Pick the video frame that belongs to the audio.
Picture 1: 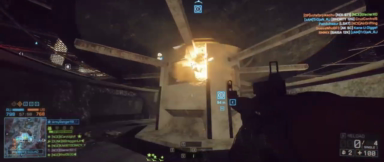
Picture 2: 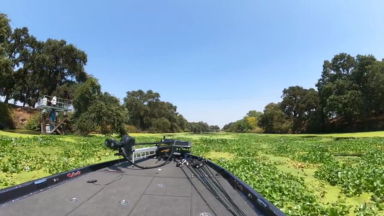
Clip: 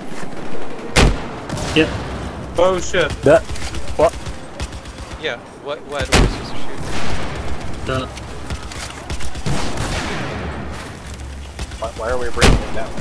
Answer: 1